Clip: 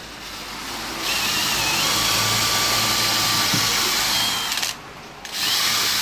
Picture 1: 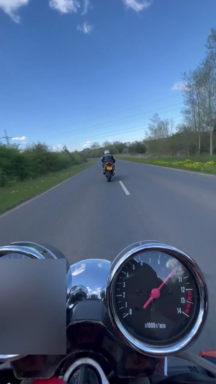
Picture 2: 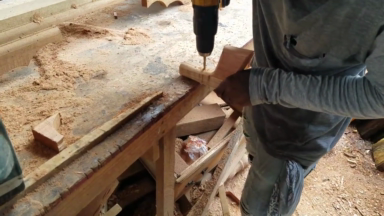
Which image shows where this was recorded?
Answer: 2